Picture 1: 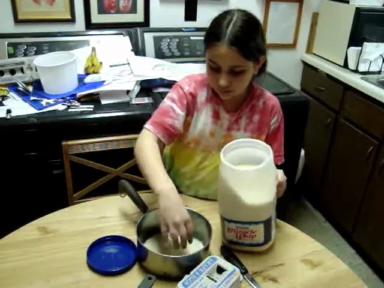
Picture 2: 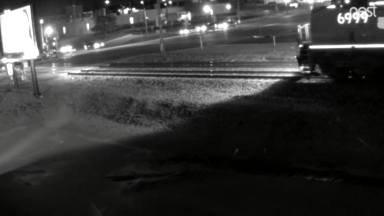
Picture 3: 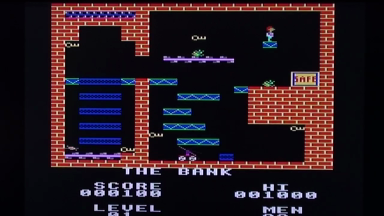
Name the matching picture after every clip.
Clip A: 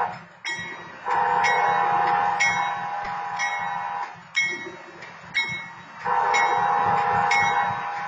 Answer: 2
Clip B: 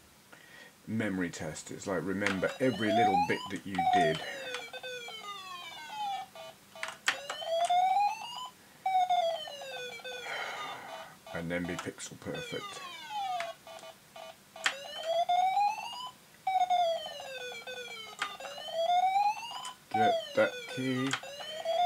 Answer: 3